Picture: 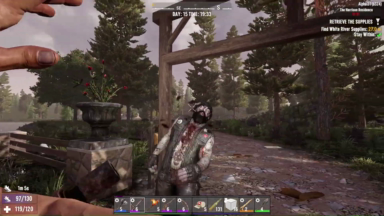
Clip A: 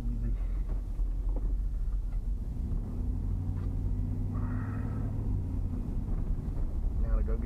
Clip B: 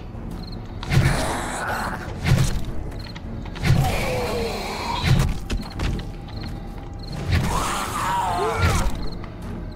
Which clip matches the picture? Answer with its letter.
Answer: B